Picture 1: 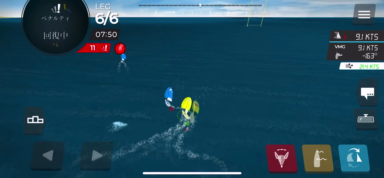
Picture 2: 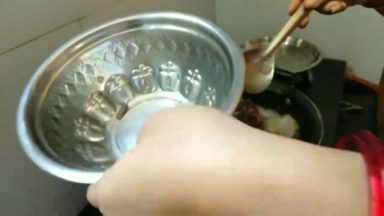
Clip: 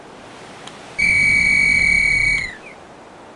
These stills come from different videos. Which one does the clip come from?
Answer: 1